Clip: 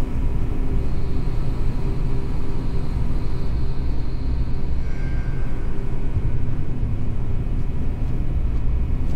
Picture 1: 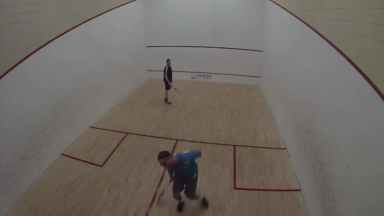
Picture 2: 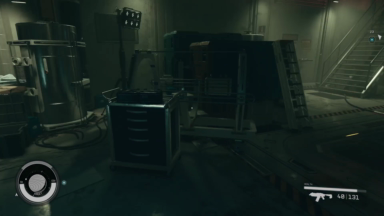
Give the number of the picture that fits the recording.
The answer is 2